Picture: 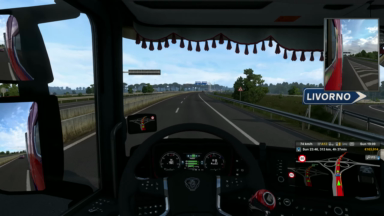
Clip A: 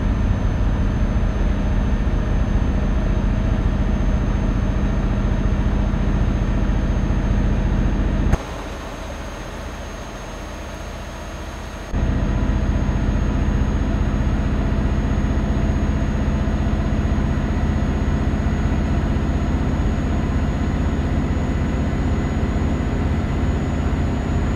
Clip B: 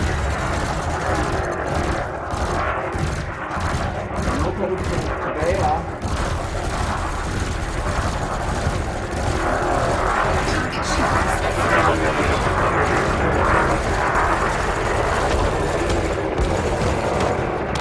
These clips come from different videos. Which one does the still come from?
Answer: A